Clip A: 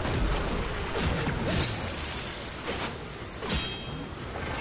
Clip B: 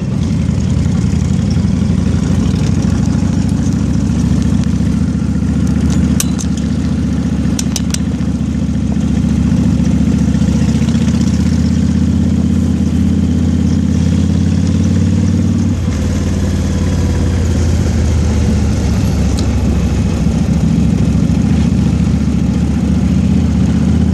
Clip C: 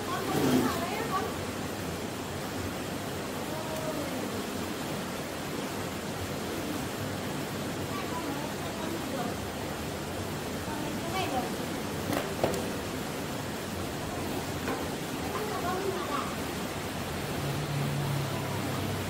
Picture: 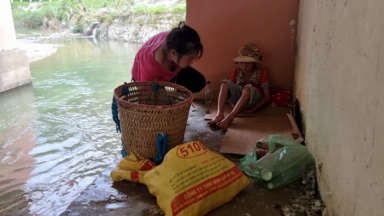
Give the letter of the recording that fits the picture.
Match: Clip C